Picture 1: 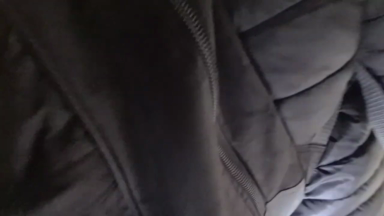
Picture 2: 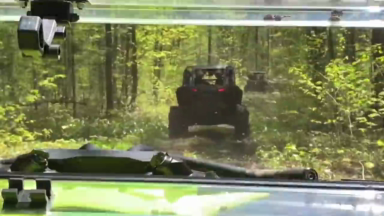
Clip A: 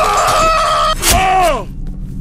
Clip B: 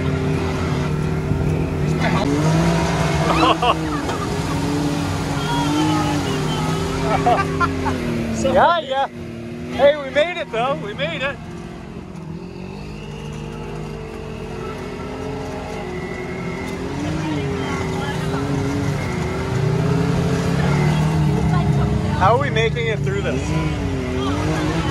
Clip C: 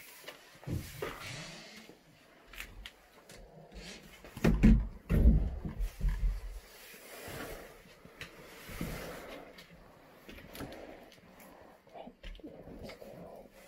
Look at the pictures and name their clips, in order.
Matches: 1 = C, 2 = B